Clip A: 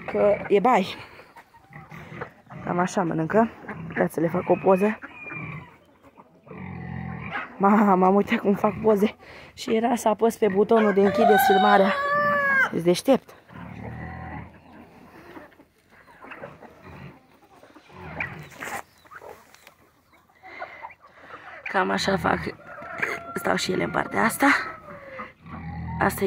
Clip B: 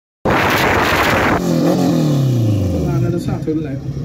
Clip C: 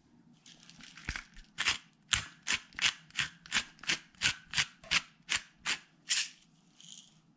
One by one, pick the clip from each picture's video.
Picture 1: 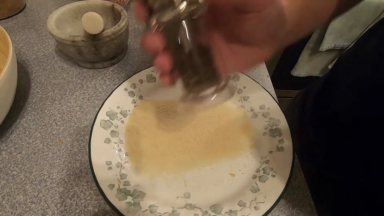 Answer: C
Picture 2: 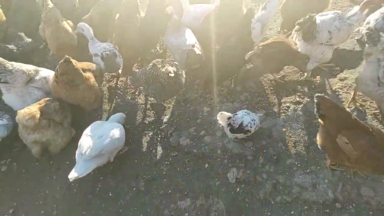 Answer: A